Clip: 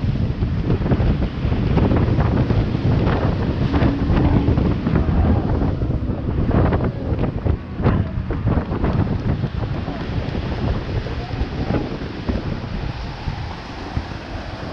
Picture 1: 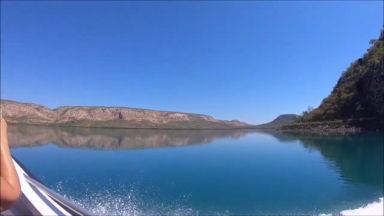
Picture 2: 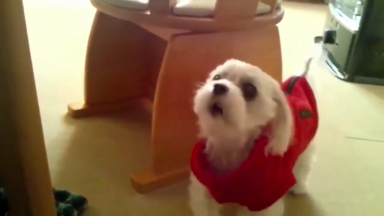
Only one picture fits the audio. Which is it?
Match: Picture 1